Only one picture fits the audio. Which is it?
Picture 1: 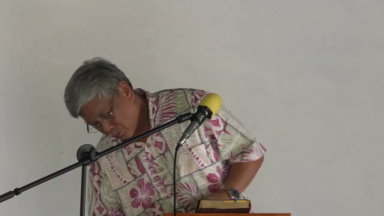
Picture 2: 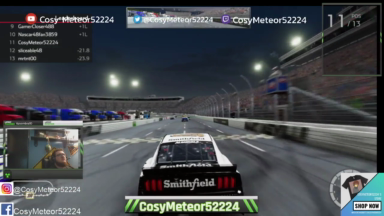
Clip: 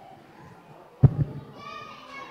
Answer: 1